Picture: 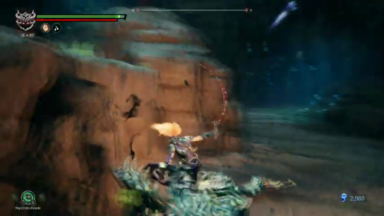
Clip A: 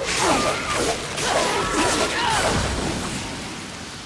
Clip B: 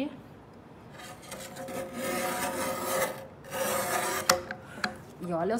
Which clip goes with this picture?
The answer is A